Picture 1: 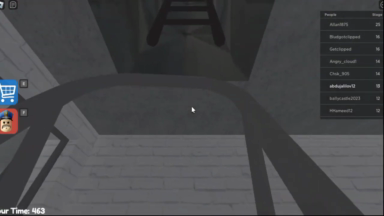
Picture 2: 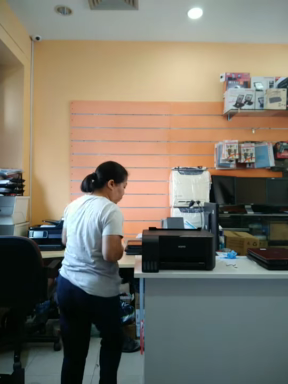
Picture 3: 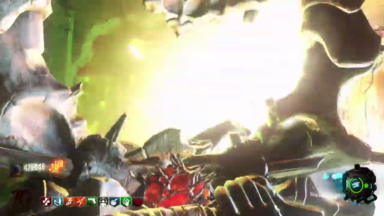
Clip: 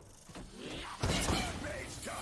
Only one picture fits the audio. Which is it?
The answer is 3